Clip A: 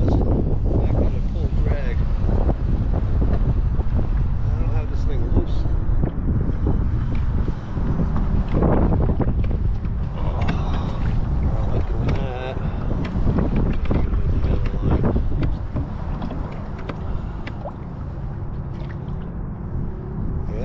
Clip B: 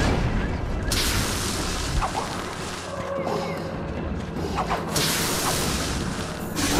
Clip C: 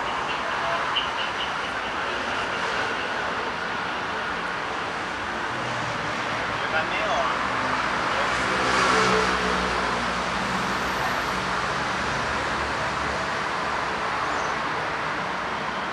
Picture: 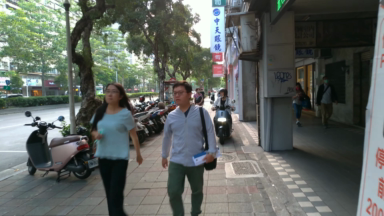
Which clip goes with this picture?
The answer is C